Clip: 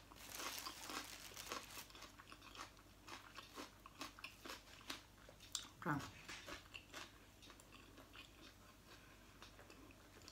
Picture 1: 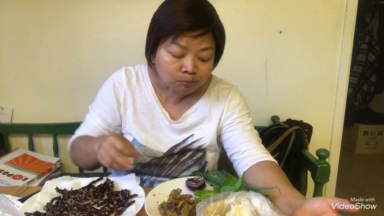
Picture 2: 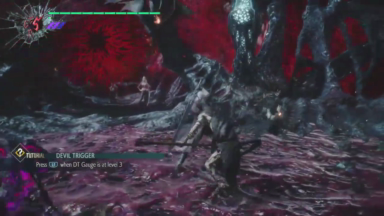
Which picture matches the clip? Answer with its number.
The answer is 1